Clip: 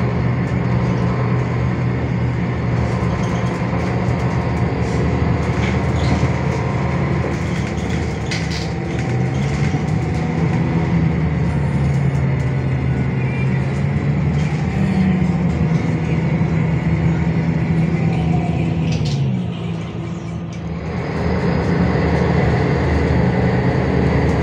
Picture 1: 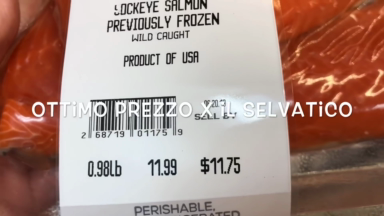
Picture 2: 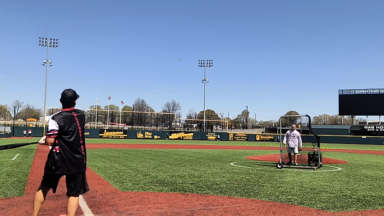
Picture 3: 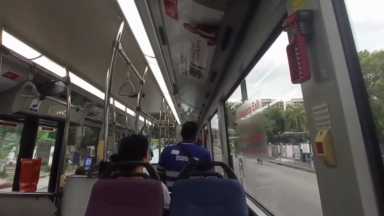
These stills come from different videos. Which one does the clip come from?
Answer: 3